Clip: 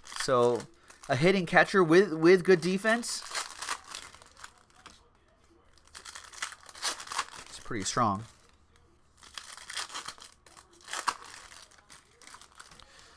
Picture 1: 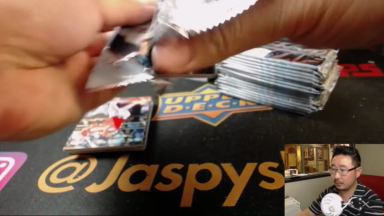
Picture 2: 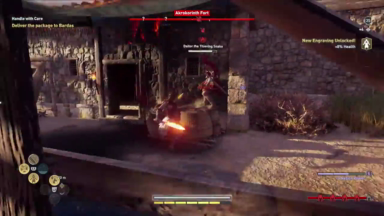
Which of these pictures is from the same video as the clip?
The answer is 1